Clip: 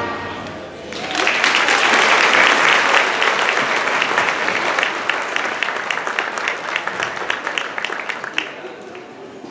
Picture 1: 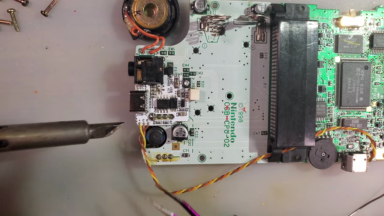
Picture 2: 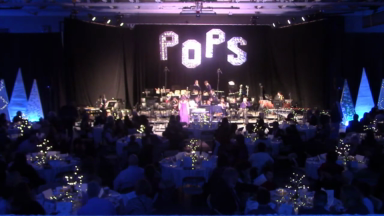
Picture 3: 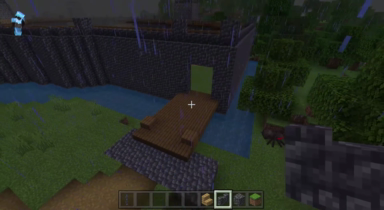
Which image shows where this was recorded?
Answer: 2